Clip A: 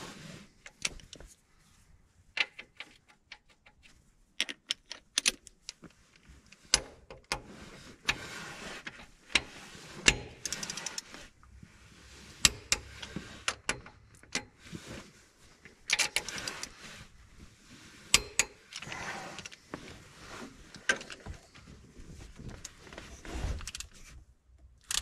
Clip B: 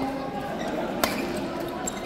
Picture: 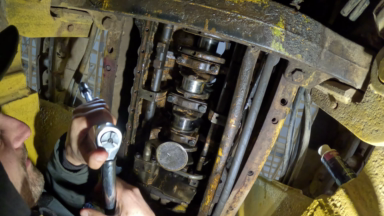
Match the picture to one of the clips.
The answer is A